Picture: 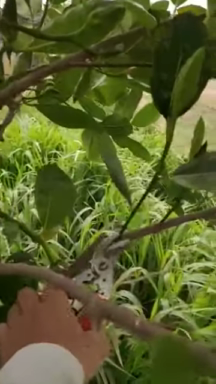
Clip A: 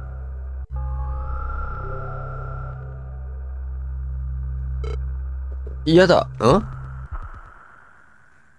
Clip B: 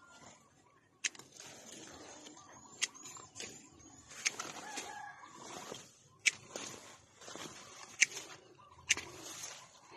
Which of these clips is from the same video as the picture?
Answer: B